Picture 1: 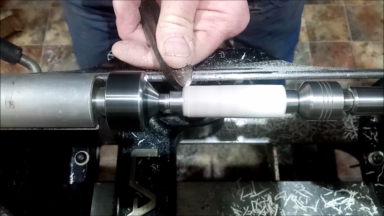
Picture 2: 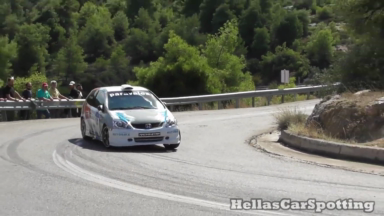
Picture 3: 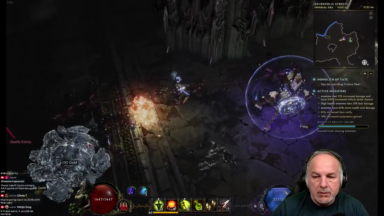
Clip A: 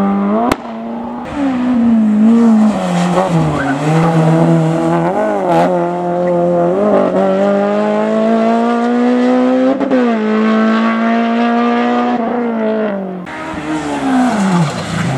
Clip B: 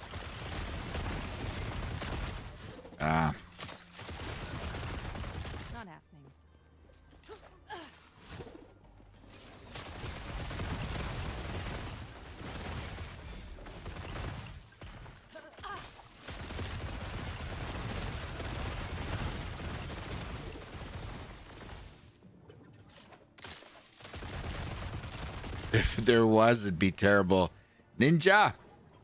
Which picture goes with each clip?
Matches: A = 2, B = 3